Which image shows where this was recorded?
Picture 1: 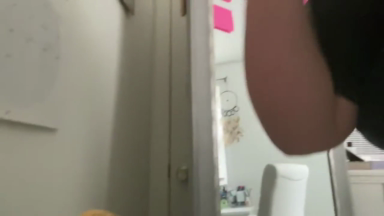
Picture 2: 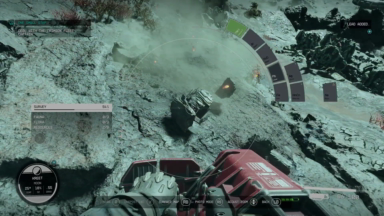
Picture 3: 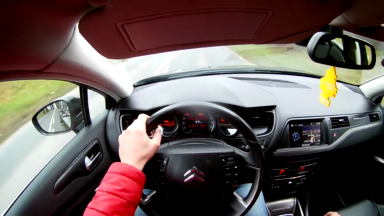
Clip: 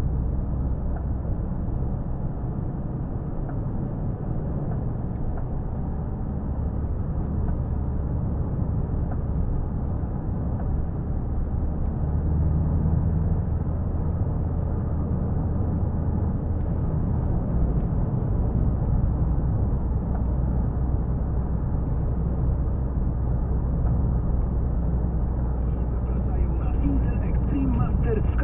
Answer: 3